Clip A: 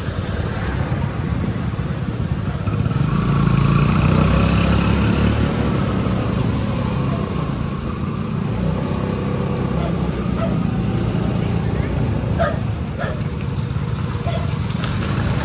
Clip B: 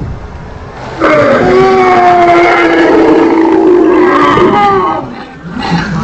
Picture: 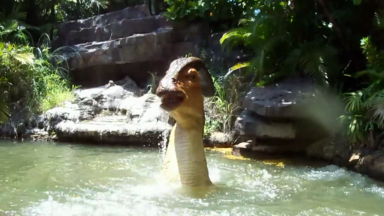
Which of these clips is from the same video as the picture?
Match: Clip B